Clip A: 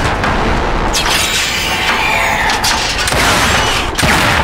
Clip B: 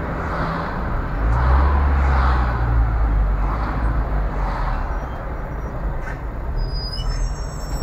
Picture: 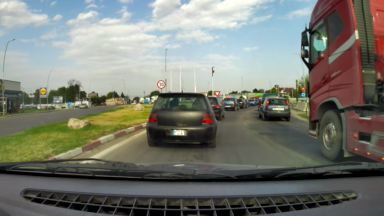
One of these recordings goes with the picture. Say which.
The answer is B